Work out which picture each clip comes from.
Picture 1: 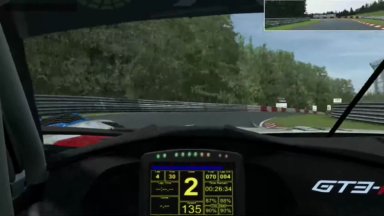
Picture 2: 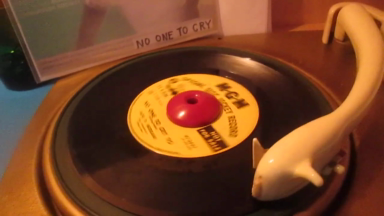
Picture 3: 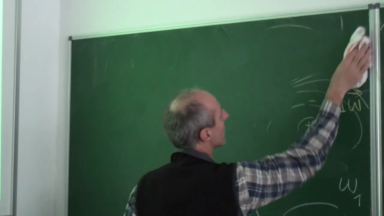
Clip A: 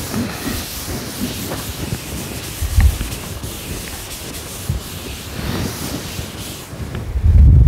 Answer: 3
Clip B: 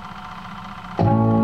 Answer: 2